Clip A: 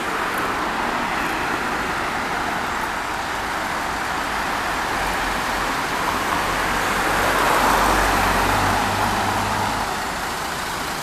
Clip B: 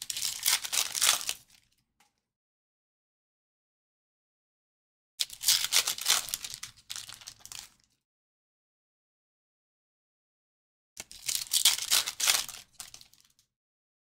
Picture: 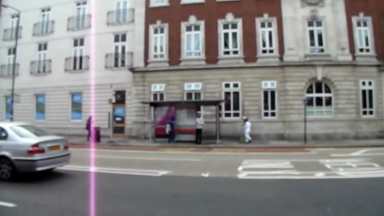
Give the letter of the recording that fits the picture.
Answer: A